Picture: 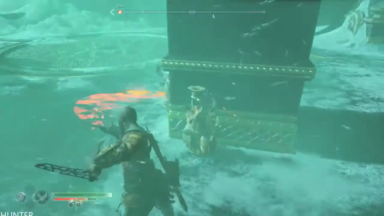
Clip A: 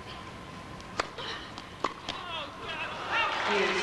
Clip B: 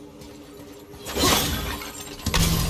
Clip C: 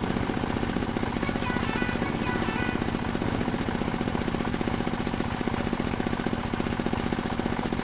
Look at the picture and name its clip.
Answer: B